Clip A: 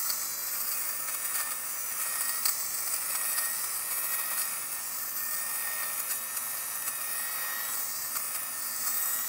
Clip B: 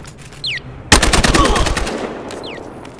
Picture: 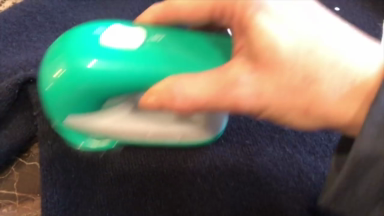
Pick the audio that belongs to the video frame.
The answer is A